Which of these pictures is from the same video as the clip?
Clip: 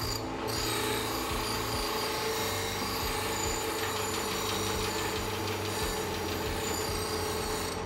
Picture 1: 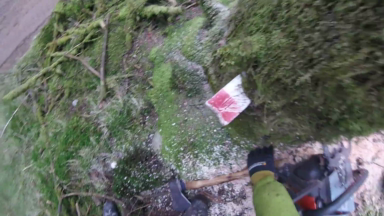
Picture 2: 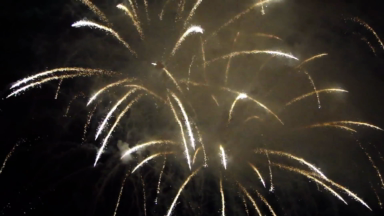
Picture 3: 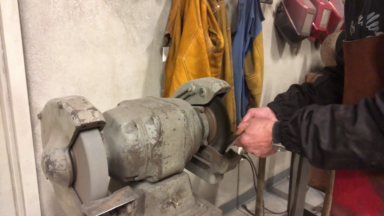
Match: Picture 3